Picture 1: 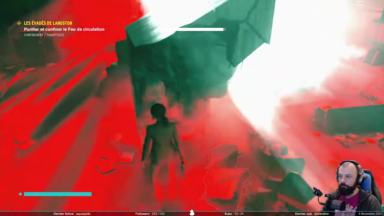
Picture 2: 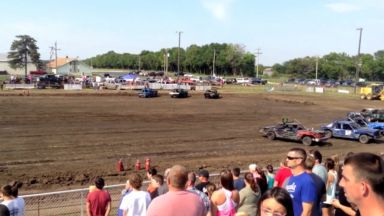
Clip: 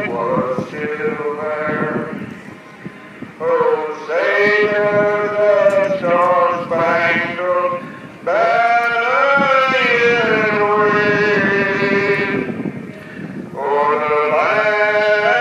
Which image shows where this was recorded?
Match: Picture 2